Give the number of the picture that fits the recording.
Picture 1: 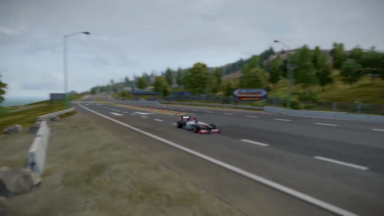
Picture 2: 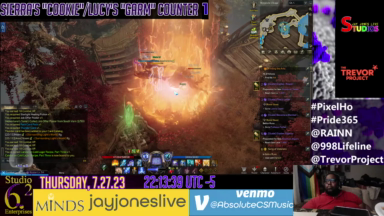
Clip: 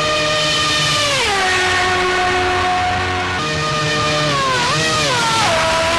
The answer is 1